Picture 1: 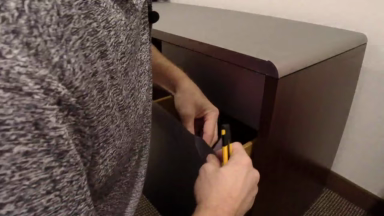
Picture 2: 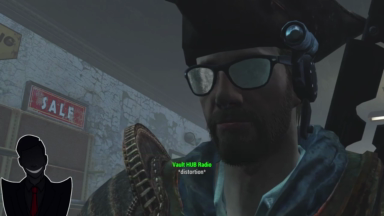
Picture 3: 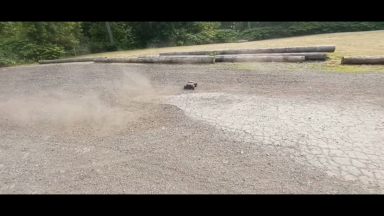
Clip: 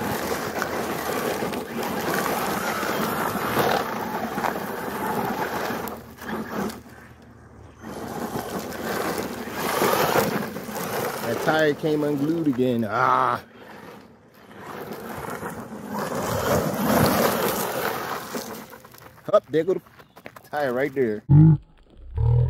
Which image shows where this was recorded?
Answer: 3